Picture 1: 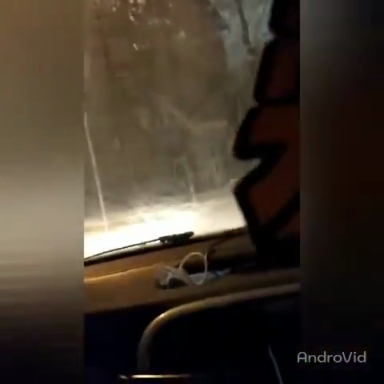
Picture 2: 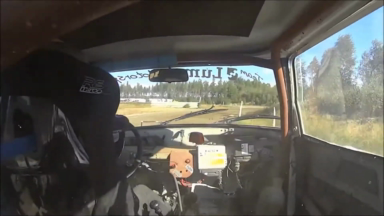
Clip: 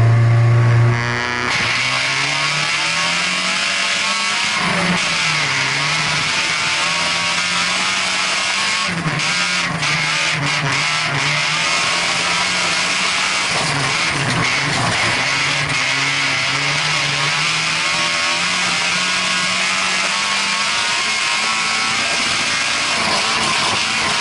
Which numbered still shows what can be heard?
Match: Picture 2